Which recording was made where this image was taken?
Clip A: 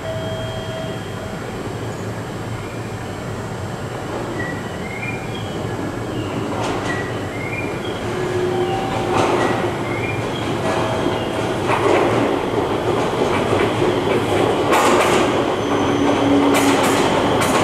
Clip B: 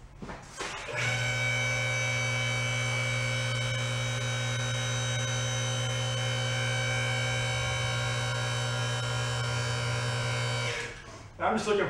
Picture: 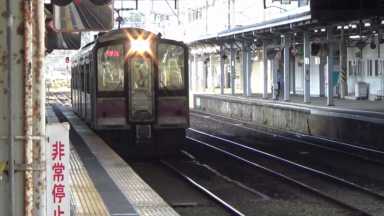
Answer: A